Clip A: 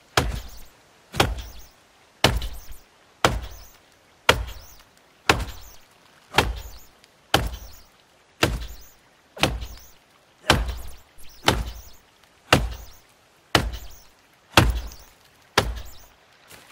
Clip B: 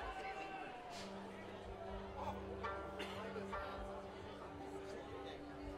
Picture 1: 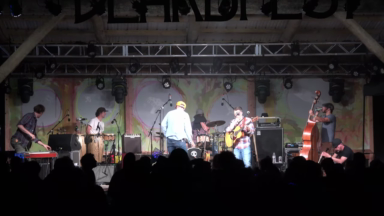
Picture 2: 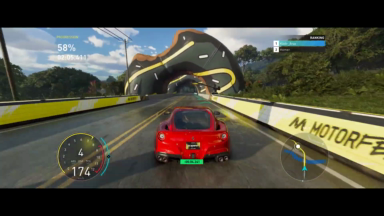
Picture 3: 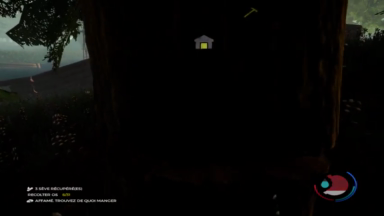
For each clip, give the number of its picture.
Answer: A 3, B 1